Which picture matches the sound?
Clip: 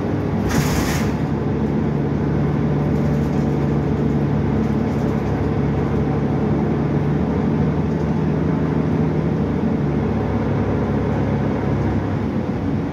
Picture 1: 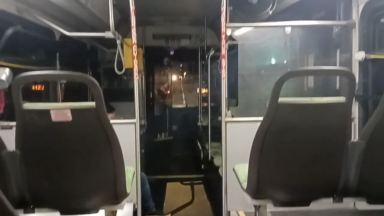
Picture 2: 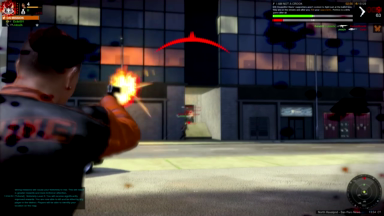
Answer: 1